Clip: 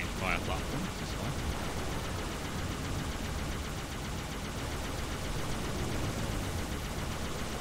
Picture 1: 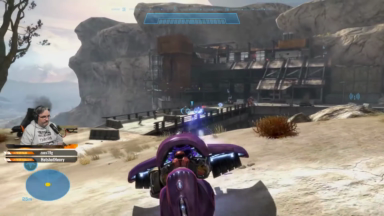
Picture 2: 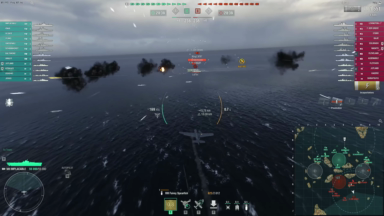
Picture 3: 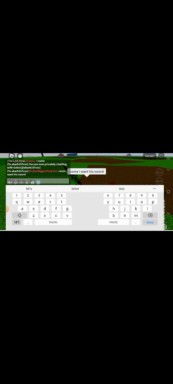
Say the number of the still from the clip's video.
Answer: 1